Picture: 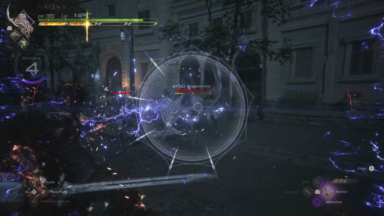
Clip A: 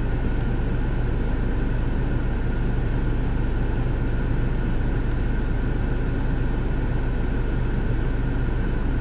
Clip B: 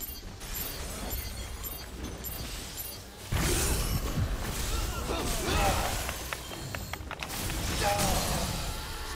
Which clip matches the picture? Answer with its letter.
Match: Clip B